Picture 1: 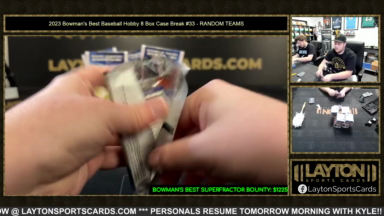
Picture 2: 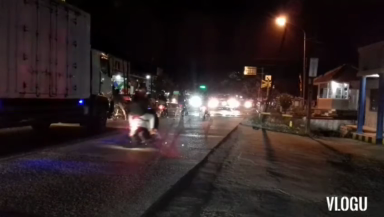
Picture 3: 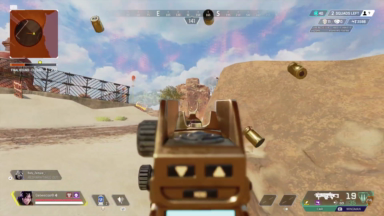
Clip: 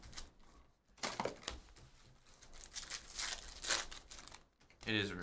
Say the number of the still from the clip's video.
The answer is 1